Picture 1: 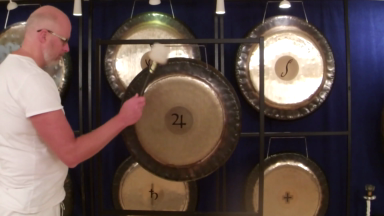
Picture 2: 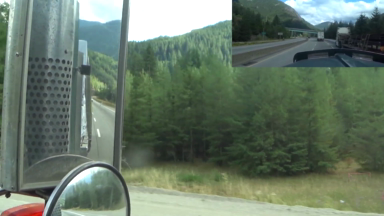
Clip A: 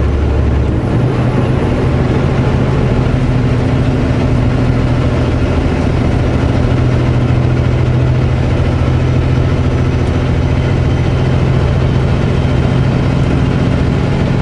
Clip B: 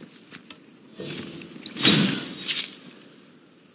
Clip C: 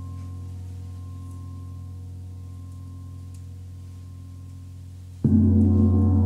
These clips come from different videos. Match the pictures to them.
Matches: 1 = C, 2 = A